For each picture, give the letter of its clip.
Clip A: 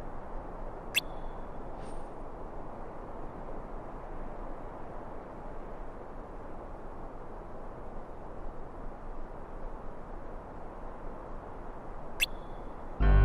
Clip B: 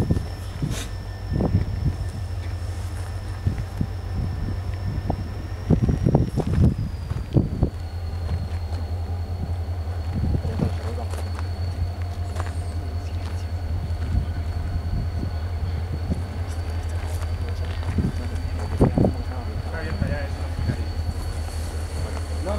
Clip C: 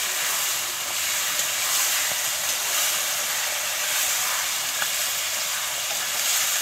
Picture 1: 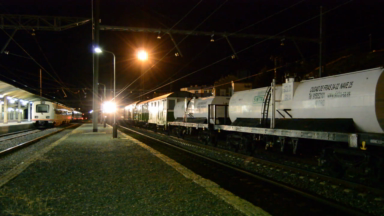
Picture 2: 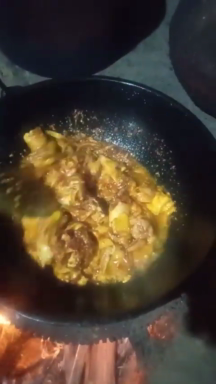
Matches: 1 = B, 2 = C